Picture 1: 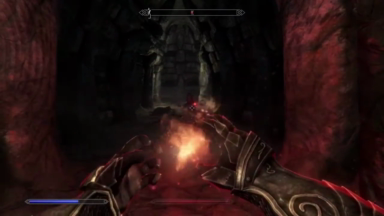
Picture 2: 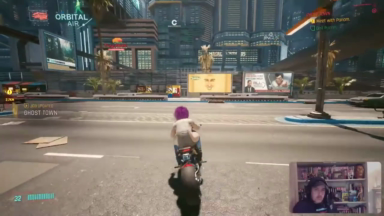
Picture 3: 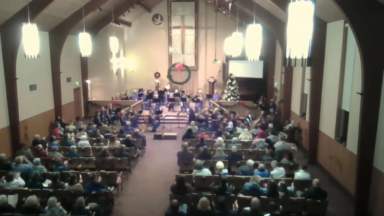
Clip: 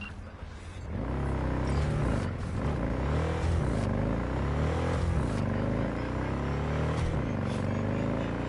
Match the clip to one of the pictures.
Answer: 2